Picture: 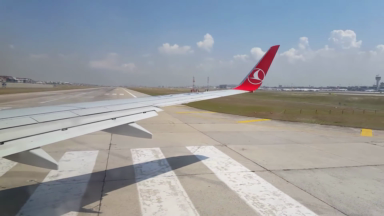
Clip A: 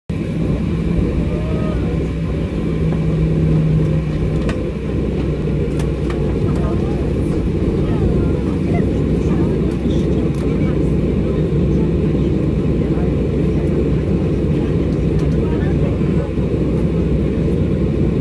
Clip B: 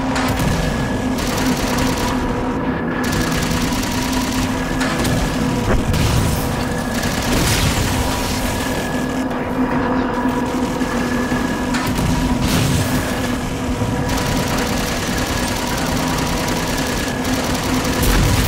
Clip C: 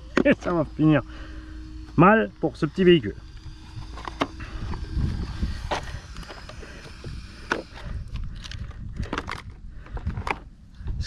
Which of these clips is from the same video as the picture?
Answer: A